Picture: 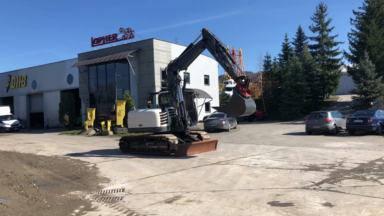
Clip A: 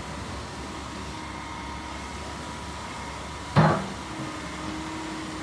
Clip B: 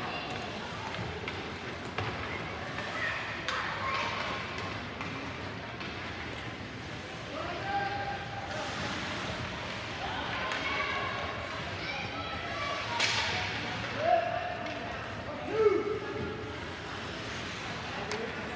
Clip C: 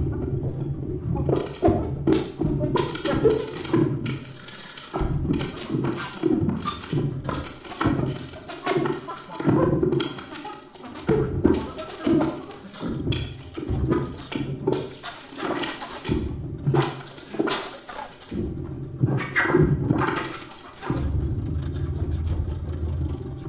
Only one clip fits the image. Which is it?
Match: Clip A